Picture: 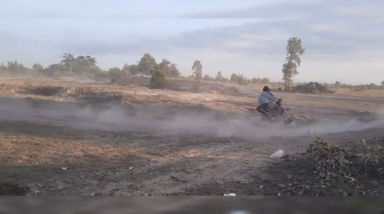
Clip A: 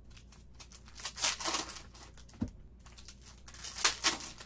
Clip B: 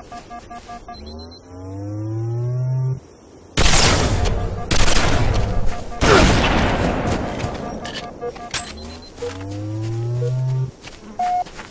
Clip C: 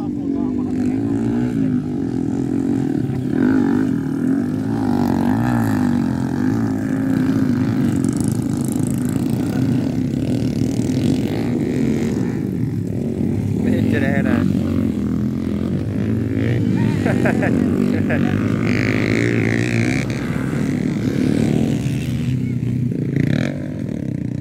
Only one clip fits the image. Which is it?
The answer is C